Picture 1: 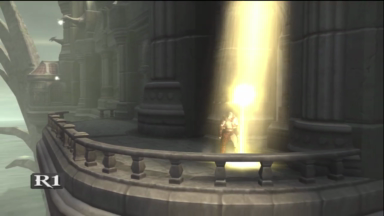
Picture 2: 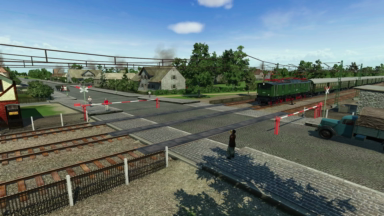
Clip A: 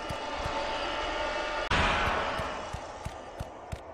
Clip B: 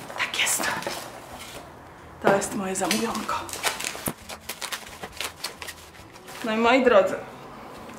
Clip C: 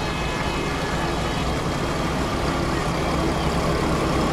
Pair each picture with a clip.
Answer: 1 A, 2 C